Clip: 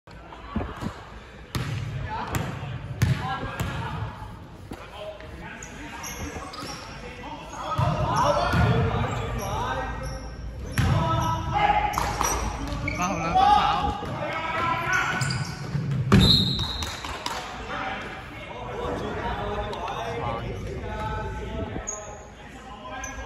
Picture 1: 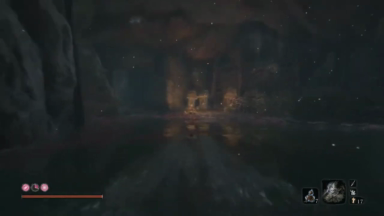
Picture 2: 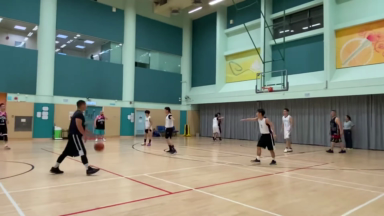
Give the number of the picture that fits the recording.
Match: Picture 2